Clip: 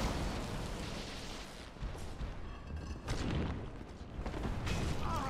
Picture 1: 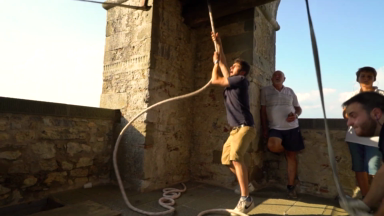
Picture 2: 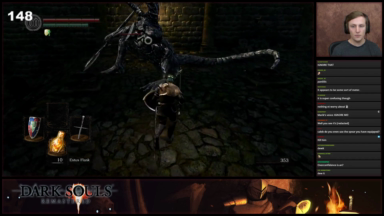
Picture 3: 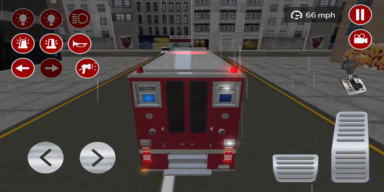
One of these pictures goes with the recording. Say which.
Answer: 2